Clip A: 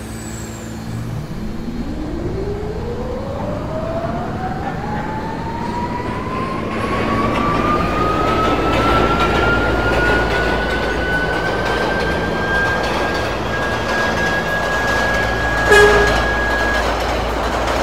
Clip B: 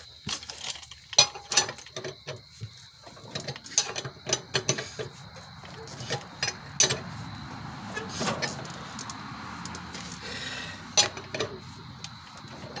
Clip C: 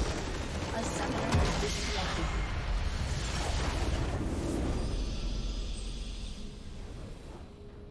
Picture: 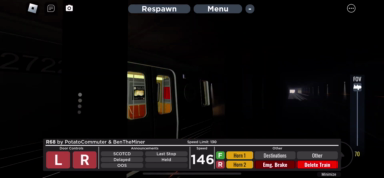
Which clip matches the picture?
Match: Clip A